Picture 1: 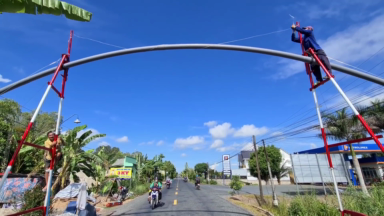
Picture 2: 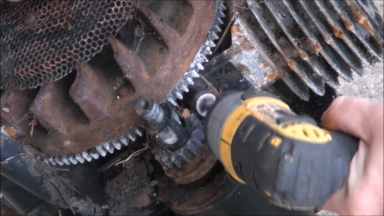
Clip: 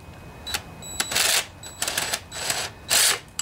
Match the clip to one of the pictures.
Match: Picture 2